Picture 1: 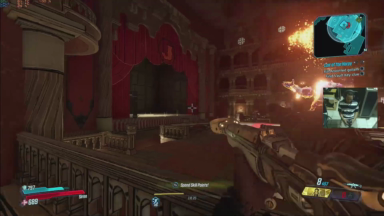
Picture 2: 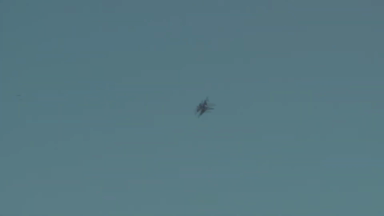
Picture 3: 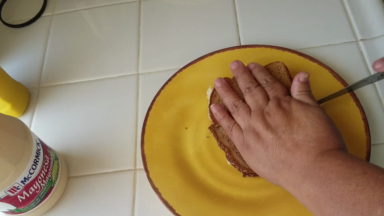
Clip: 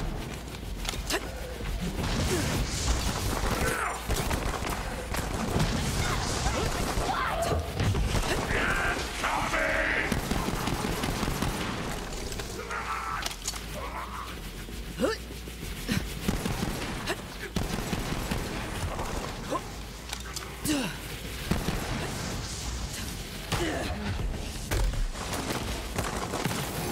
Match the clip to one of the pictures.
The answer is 1